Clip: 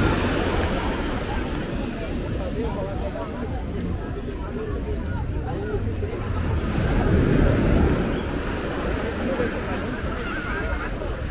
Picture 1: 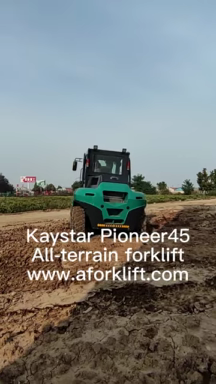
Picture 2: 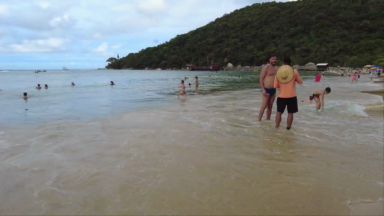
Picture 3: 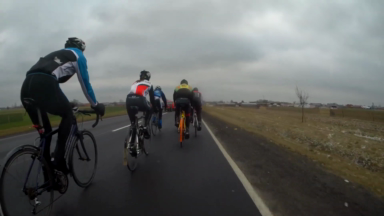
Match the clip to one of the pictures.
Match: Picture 2